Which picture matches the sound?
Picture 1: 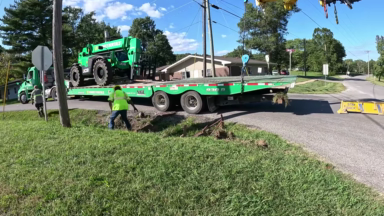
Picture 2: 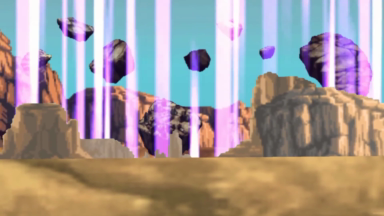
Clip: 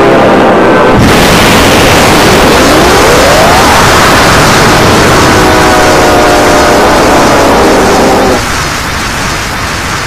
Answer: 2